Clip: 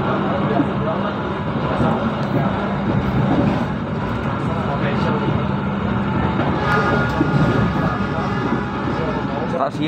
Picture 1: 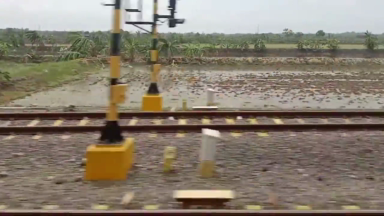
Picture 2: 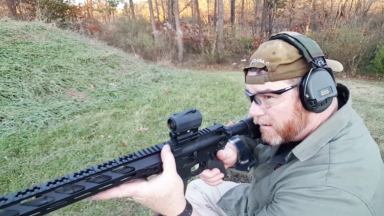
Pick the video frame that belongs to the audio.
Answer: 1